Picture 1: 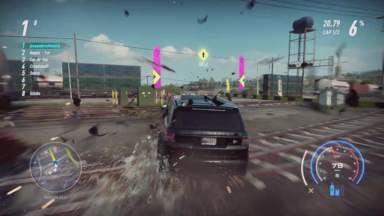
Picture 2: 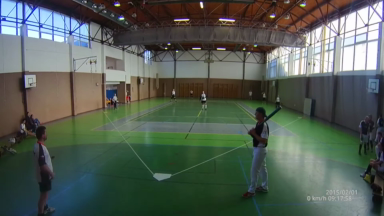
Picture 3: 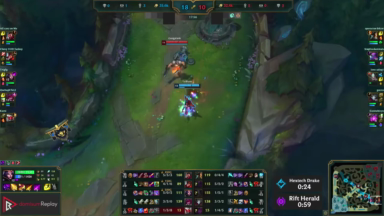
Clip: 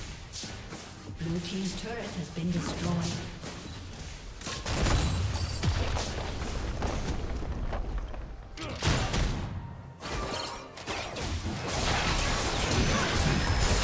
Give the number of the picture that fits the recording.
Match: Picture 3